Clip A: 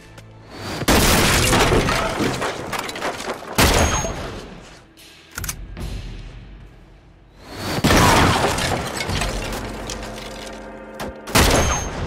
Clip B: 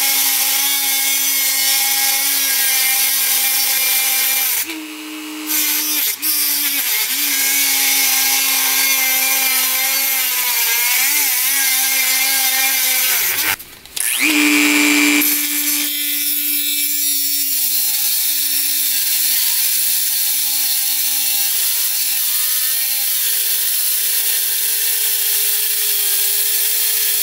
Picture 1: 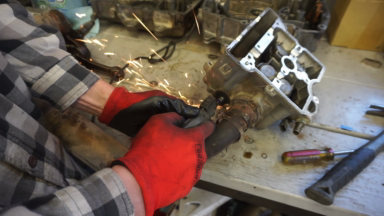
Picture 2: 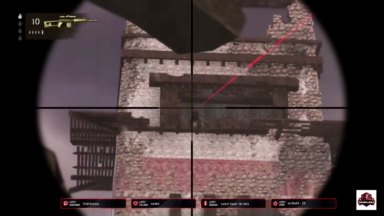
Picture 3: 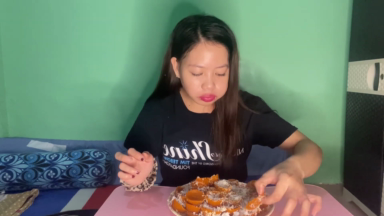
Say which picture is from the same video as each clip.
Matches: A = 2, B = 1